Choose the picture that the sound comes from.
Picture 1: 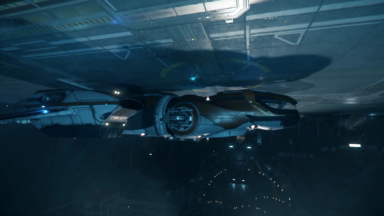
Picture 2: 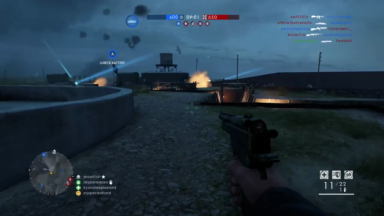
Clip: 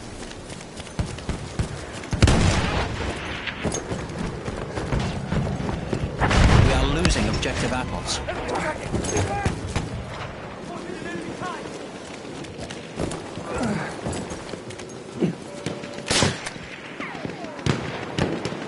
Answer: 2